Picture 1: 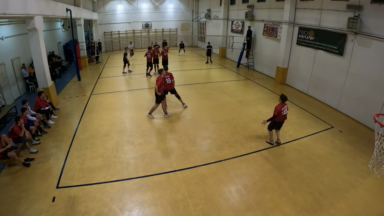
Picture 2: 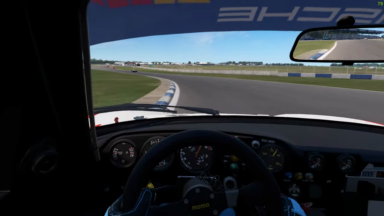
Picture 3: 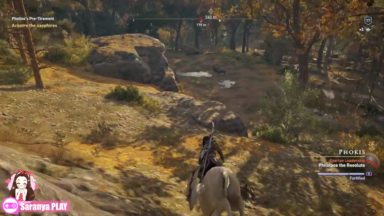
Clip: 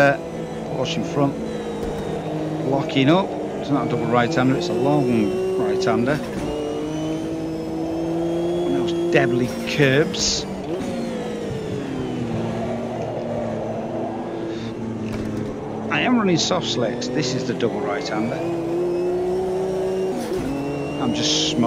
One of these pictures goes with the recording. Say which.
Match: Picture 2